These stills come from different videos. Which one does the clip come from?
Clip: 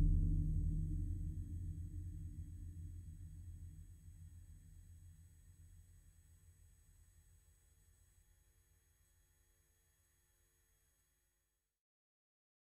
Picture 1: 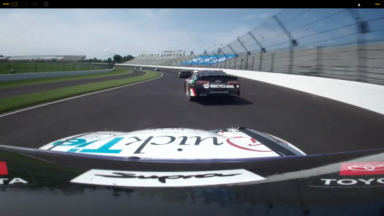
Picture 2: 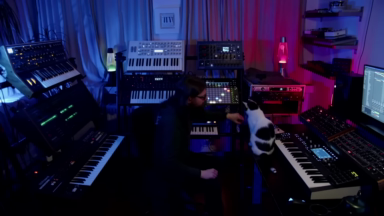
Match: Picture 2